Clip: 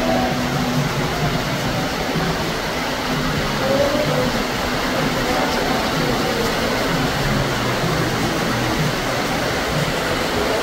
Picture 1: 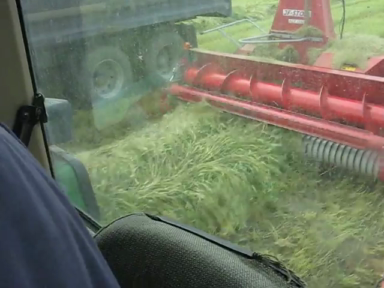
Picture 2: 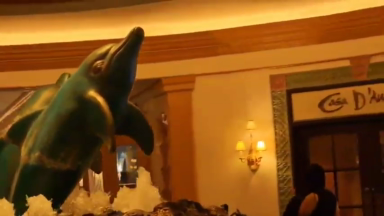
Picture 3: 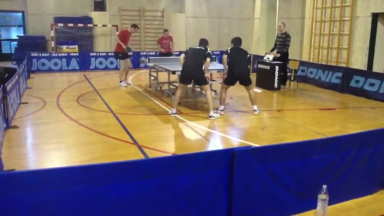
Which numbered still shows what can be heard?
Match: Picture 2